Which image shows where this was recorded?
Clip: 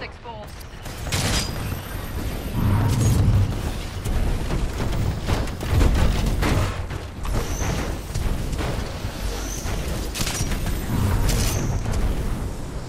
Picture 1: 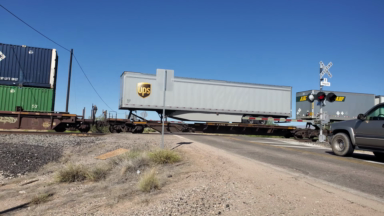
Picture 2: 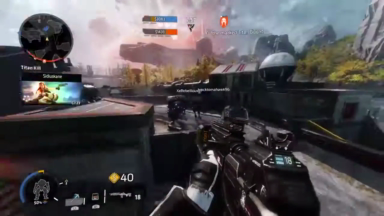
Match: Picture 2